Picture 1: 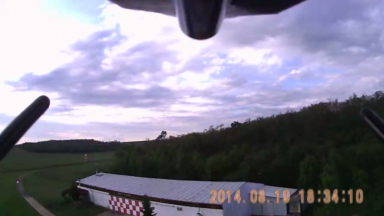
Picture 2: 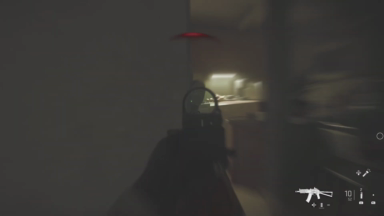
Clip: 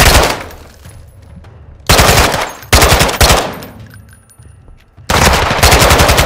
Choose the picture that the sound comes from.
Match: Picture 2